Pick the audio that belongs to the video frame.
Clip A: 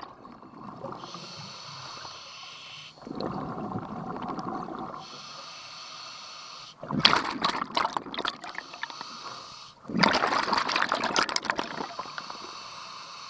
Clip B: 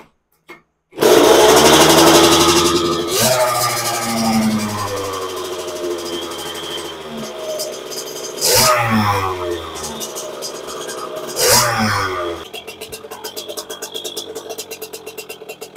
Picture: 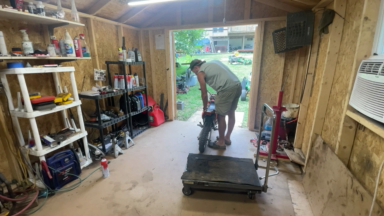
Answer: B